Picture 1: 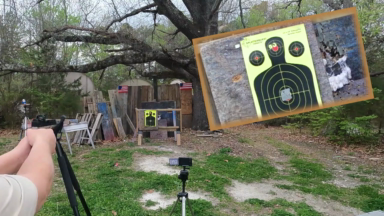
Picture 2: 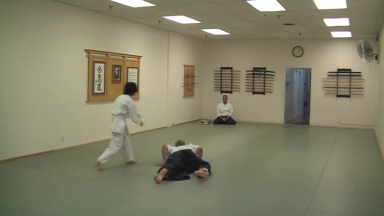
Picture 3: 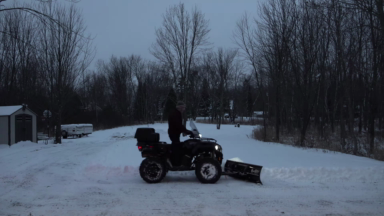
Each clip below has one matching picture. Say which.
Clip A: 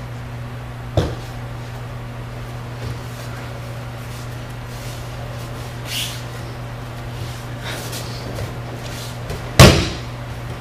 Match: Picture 2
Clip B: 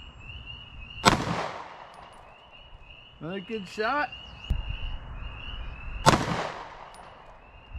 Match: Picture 1